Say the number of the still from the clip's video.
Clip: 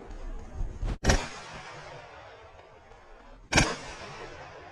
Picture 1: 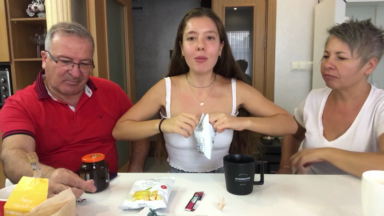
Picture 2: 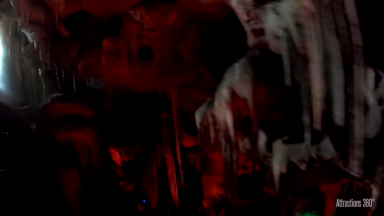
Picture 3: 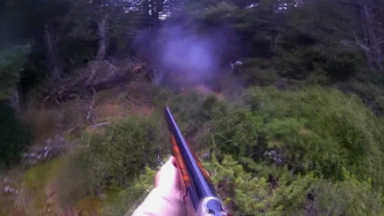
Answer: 3